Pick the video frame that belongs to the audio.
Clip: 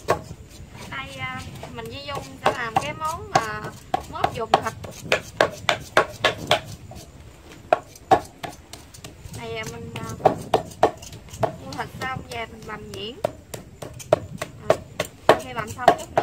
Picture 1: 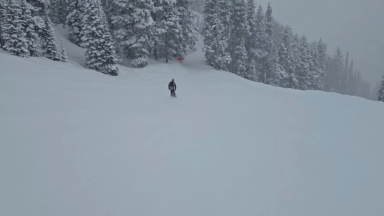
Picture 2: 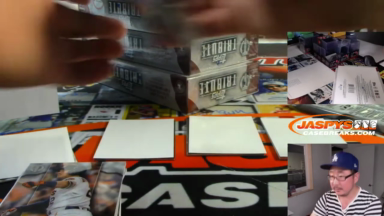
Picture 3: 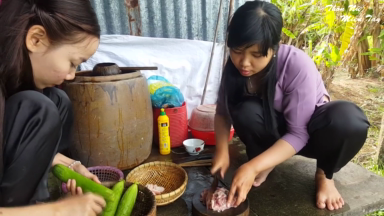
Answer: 3